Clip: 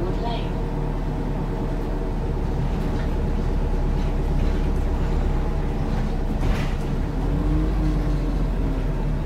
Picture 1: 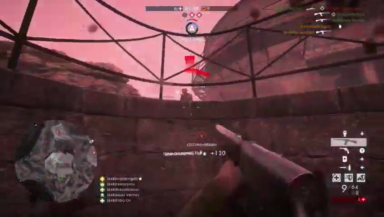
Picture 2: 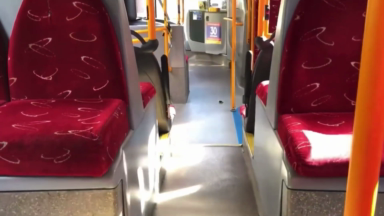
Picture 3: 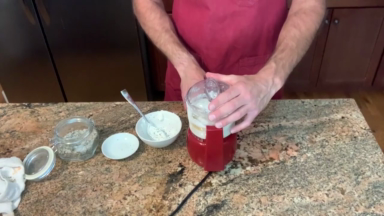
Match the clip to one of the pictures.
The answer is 2